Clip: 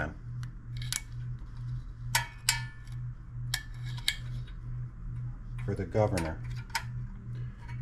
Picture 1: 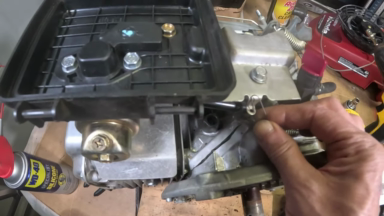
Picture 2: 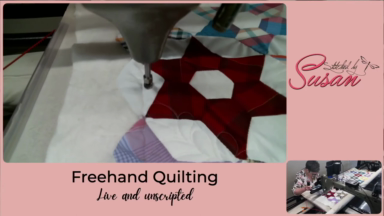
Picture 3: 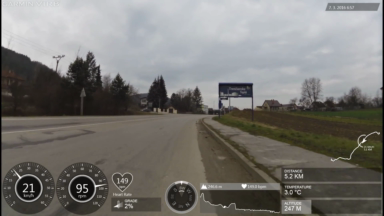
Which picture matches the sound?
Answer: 1